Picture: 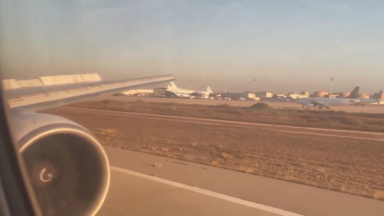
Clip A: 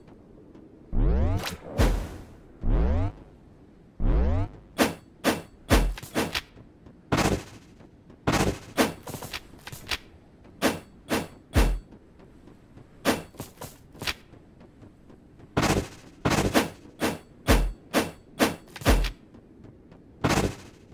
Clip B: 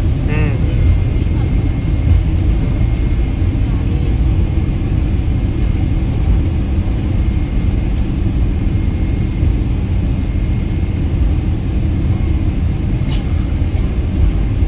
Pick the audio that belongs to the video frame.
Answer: B